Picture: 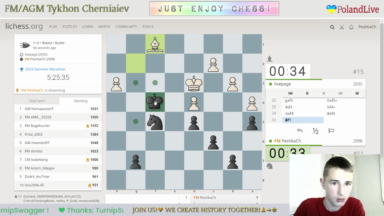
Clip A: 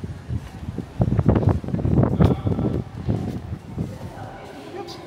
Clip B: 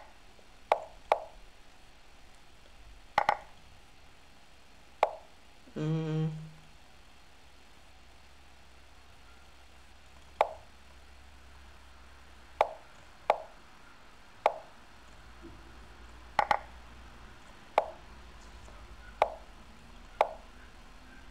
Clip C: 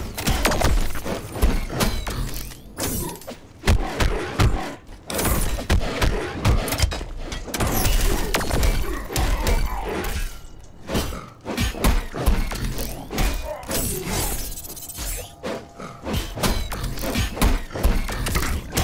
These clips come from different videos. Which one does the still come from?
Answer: B